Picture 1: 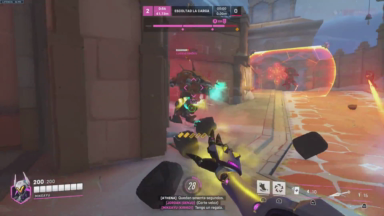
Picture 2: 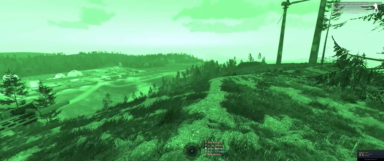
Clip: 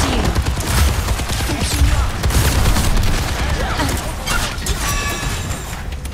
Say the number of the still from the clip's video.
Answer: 1